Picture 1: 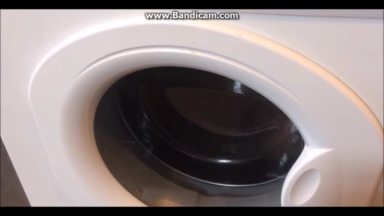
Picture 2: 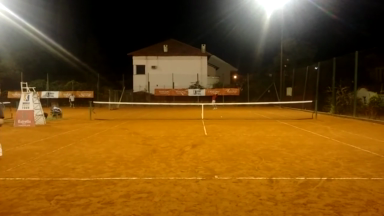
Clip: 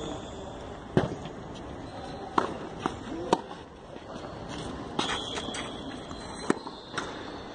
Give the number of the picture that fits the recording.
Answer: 2